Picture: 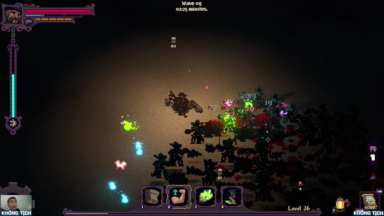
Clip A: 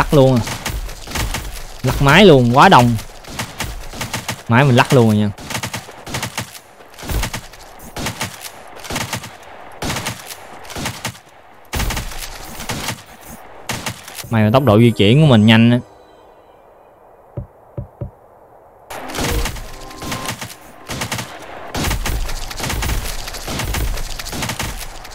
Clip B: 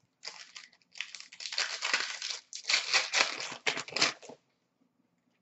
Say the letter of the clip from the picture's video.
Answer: A